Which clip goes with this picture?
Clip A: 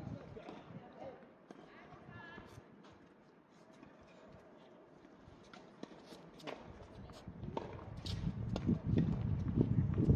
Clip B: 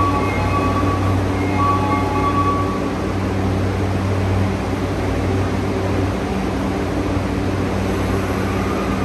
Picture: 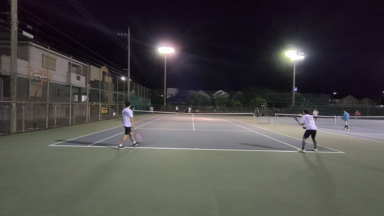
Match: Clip A